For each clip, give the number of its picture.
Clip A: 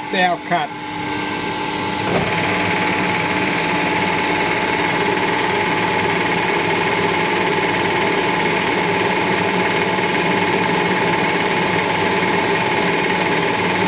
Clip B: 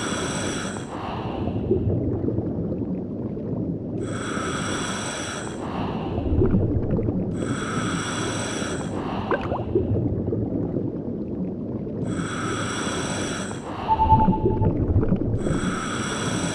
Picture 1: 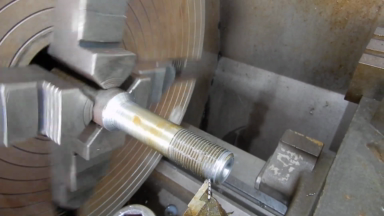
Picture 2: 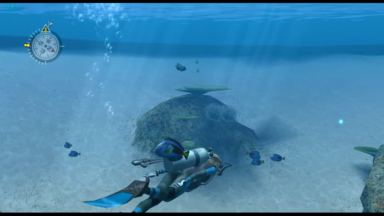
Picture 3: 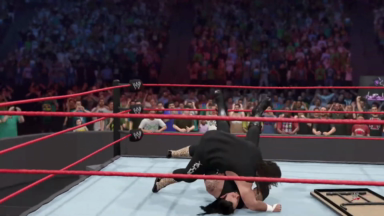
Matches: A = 1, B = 2